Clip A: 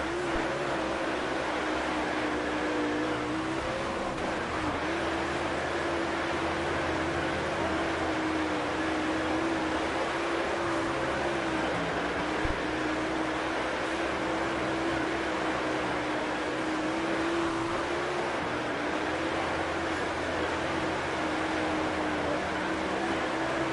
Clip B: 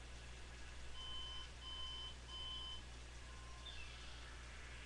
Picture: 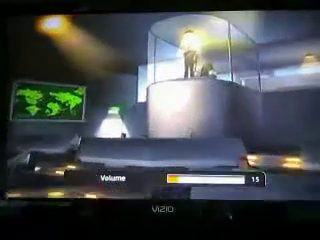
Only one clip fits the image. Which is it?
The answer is B